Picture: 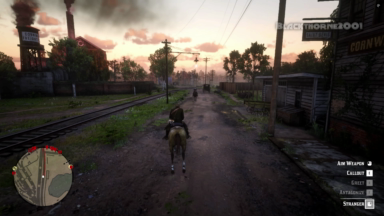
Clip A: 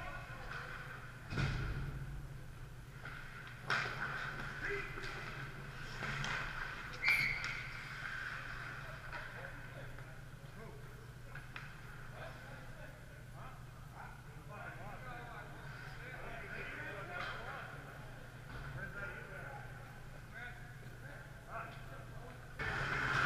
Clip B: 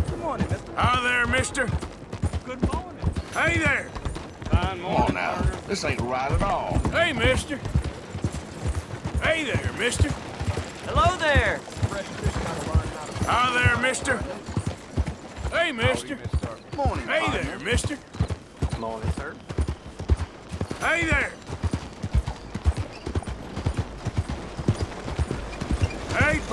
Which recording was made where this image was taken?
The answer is B